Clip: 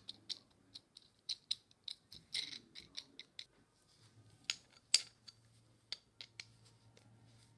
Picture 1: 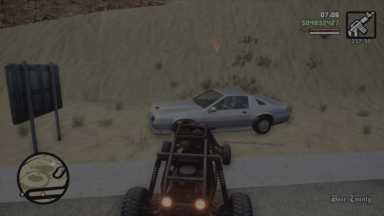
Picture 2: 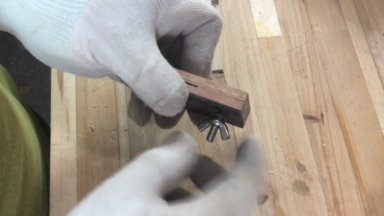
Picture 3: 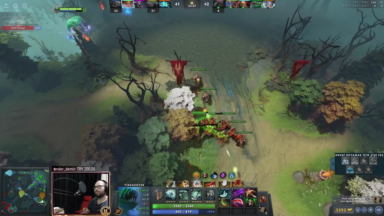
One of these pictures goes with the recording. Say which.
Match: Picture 2